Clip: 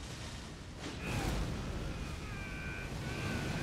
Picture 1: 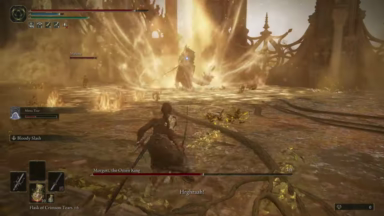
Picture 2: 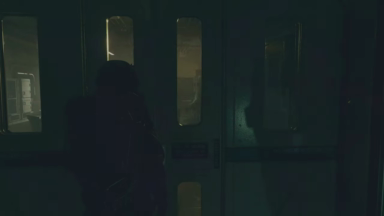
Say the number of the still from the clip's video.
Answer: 1